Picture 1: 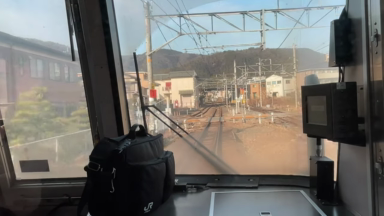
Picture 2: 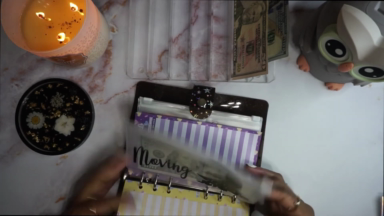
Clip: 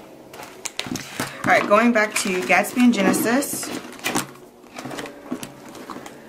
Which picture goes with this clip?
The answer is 2